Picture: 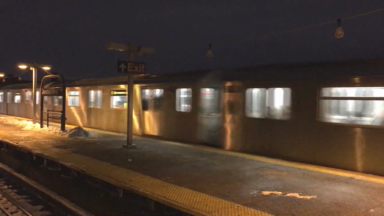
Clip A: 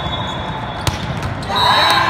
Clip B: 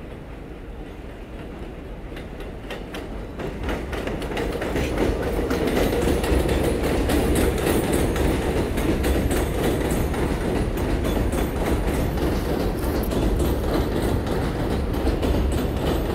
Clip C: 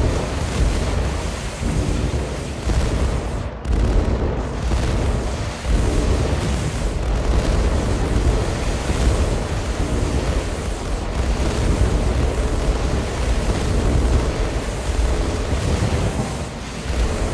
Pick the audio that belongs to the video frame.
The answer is B